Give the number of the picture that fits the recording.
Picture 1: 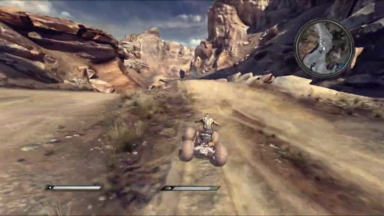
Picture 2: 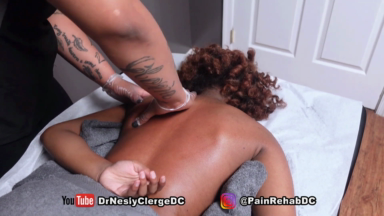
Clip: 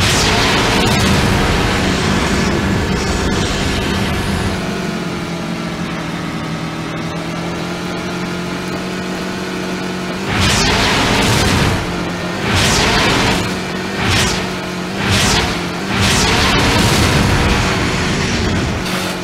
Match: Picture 1